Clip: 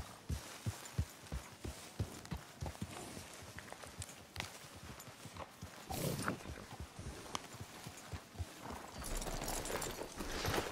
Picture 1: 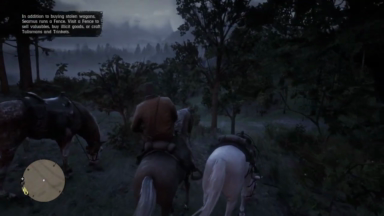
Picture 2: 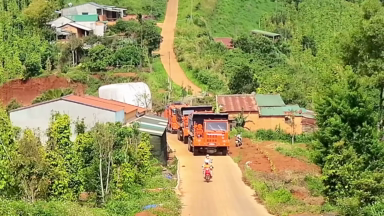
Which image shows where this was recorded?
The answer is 1